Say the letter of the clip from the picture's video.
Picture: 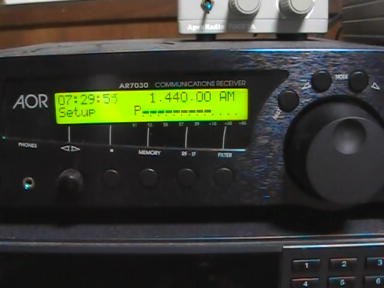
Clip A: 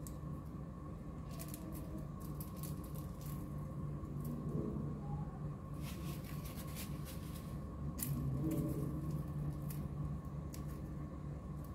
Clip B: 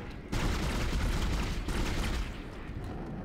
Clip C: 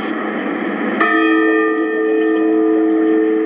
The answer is C